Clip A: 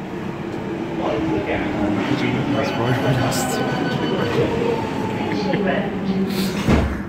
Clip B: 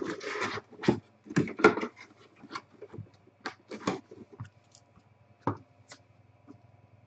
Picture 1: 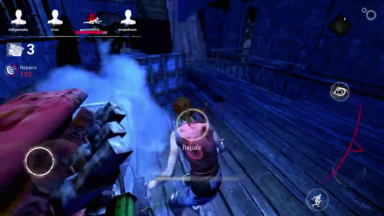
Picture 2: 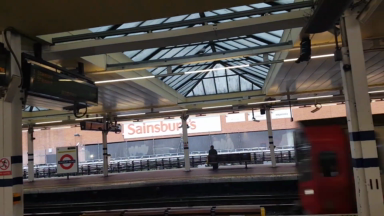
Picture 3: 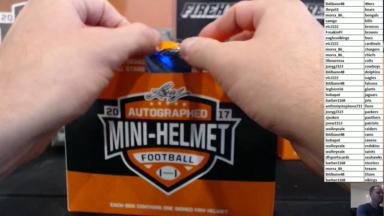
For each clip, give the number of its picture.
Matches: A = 2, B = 3